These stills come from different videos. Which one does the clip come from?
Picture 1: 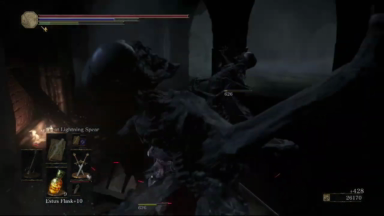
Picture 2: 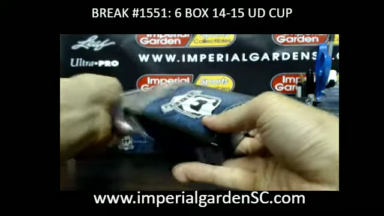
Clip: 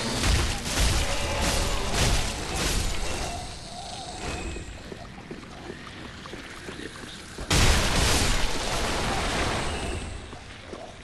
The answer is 1